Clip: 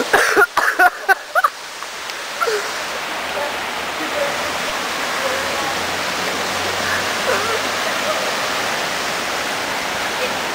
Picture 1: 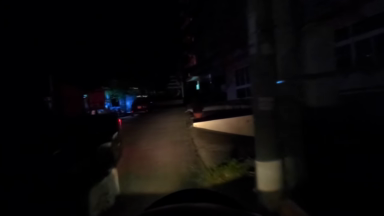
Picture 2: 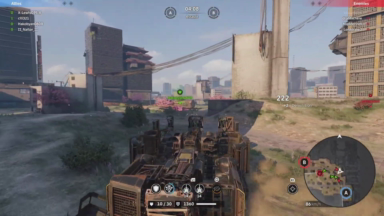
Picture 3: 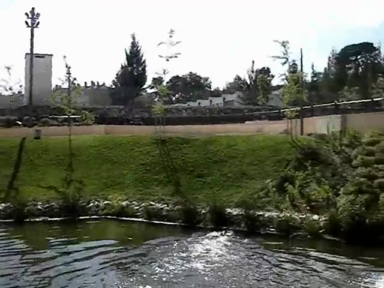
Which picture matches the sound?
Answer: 3